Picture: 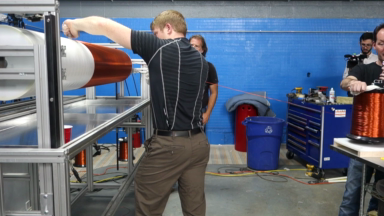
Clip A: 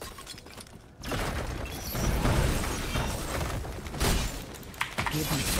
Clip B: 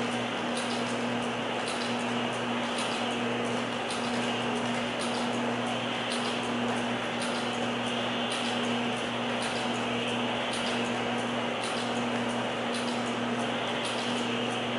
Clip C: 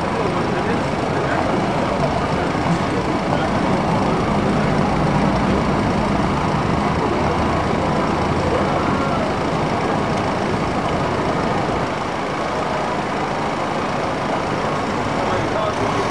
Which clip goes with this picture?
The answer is B